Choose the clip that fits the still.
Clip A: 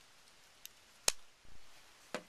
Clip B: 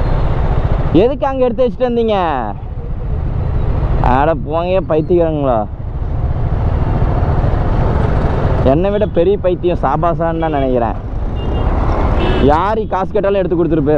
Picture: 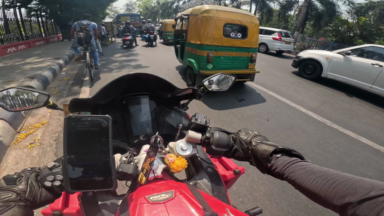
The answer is B